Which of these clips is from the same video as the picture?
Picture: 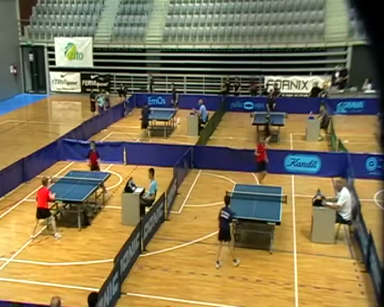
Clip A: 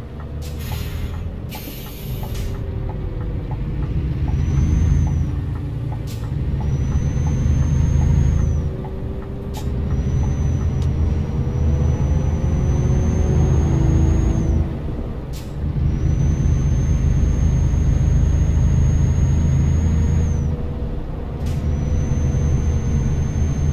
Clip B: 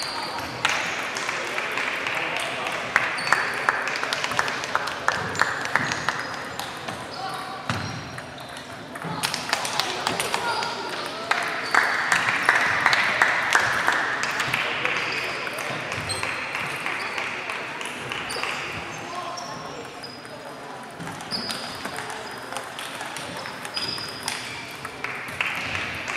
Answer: B